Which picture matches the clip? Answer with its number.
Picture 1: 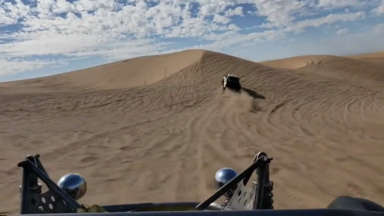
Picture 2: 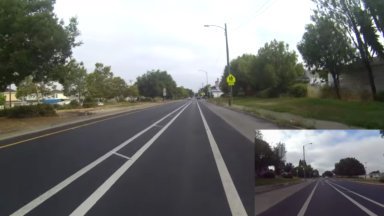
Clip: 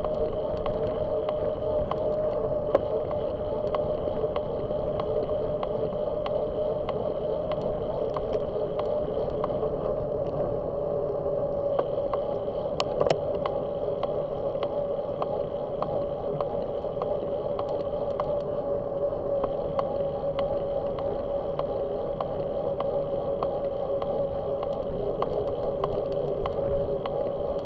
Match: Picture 2